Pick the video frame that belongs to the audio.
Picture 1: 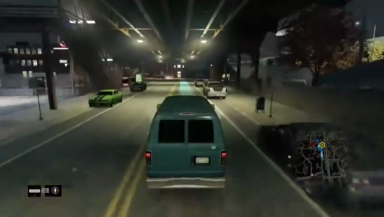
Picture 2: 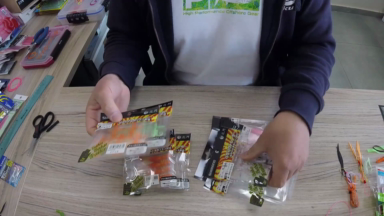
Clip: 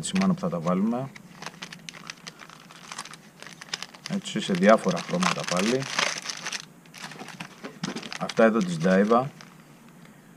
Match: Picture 2